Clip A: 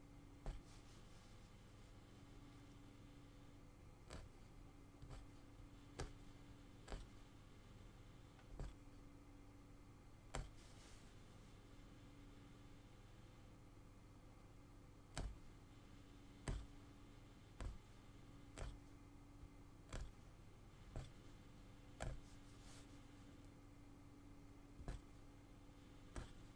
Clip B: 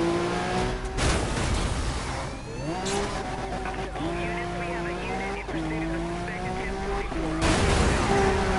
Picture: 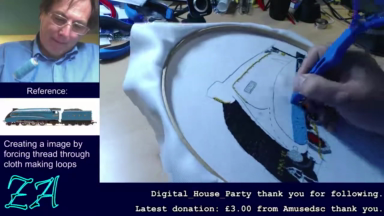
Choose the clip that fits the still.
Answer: A